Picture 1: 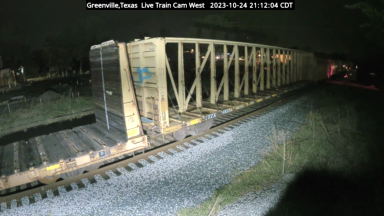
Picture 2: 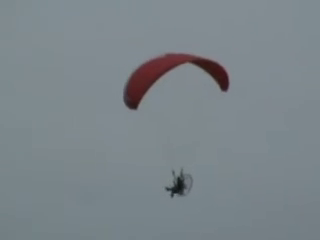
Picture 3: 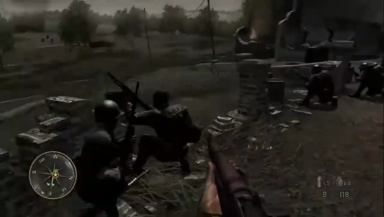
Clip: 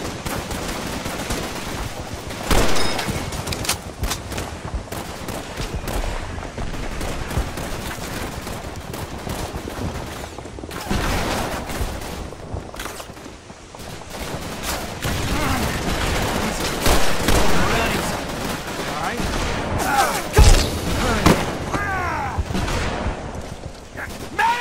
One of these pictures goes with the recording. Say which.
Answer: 3